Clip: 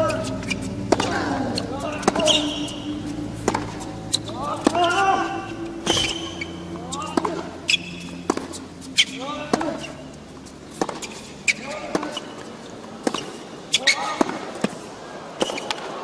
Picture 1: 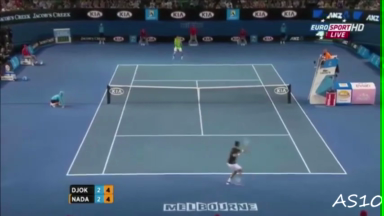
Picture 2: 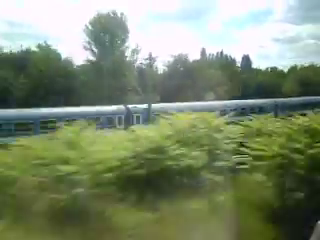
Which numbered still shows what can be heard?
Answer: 1